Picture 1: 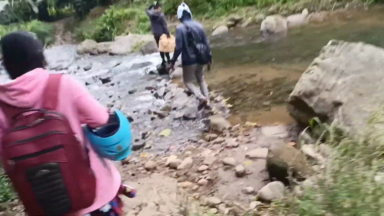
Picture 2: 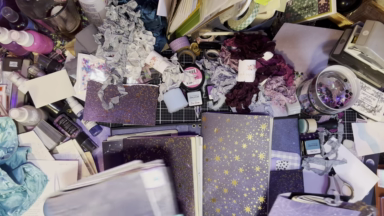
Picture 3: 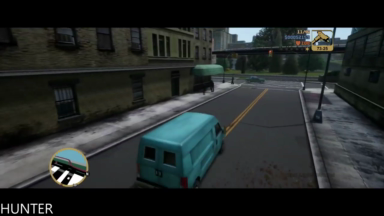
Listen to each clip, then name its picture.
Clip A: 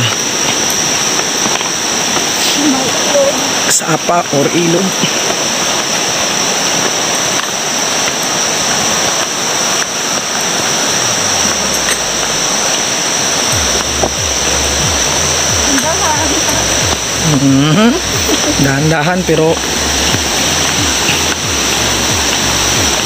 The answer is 1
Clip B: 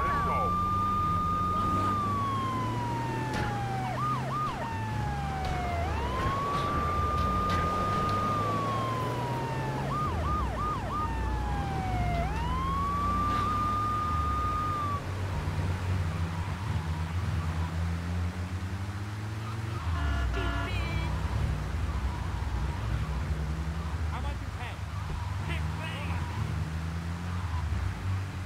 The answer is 3